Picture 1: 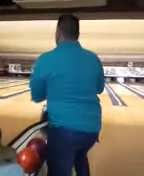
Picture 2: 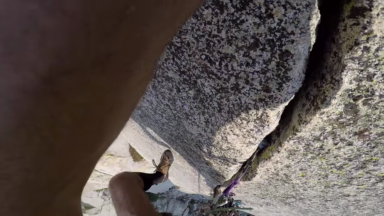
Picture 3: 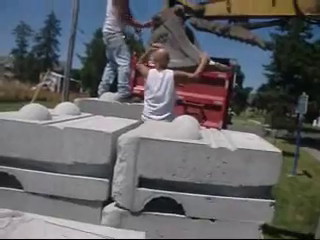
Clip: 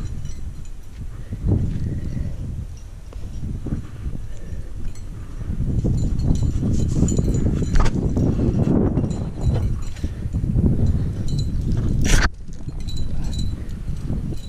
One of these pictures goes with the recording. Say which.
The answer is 2